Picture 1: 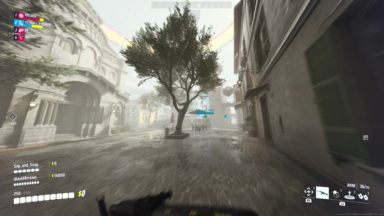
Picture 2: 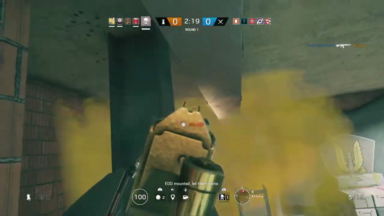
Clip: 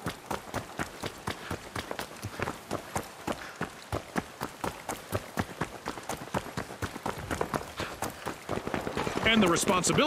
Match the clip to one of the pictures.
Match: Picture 1